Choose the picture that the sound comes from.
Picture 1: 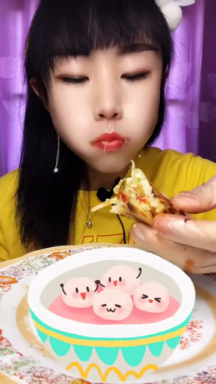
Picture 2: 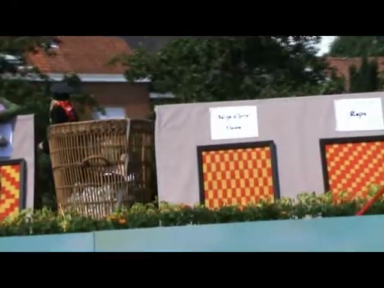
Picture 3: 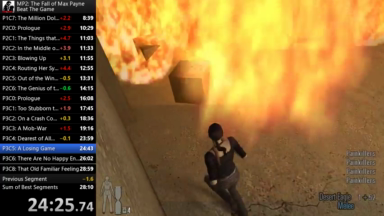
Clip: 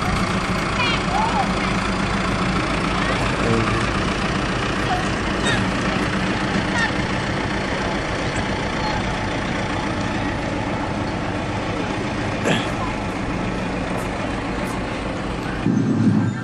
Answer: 2